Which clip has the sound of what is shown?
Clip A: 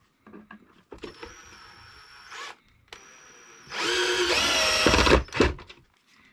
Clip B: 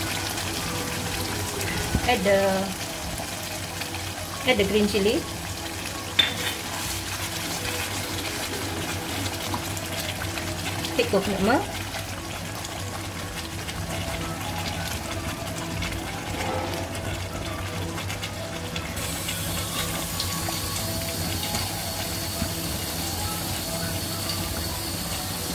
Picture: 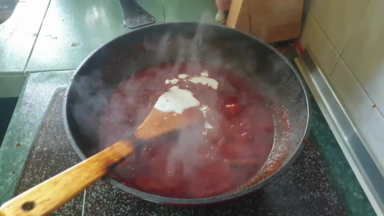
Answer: B